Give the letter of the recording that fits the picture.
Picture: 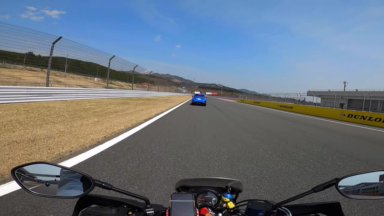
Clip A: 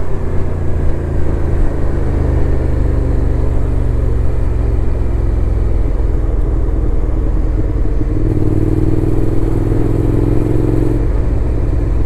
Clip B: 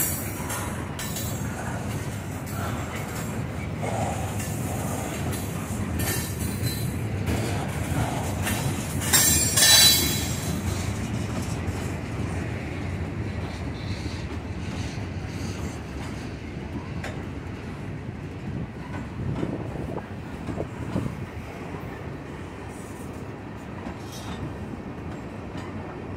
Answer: A